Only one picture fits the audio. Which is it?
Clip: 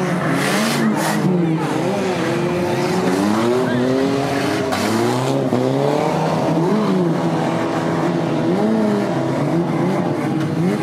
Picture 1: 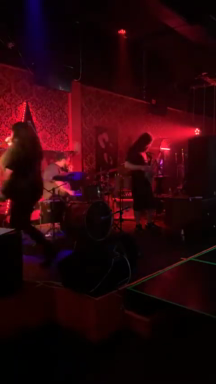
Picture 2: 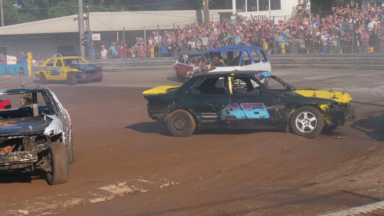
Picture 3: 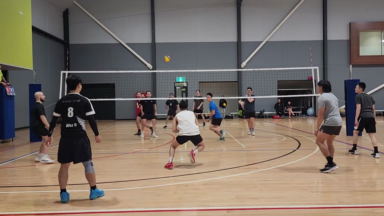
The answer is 2